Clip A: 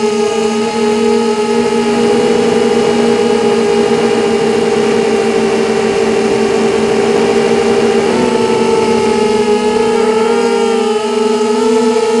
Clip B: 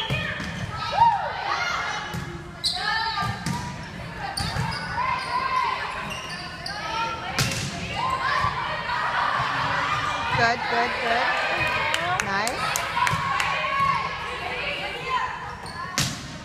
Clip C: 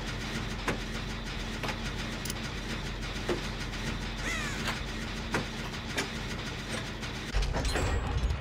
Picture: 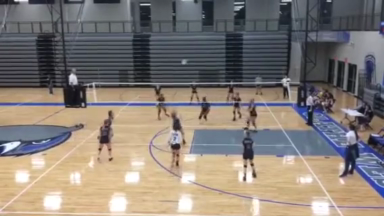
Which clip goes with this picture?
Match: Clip B